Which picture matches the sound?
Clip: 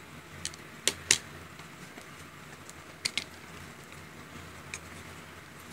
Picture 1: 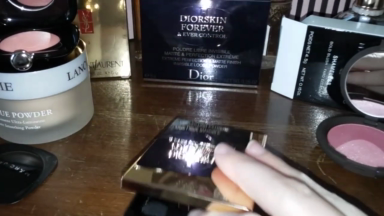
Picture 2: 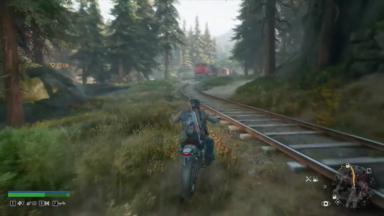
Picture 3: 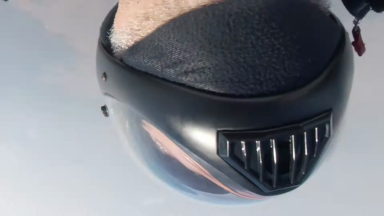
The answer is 1